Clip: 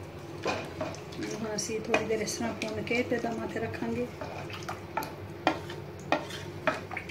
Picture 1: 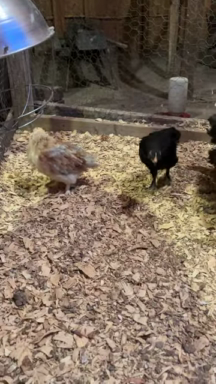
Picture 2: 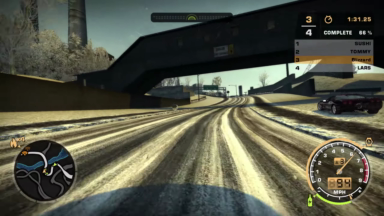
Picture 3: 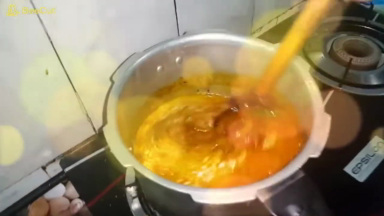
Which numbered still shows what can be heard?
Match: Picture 3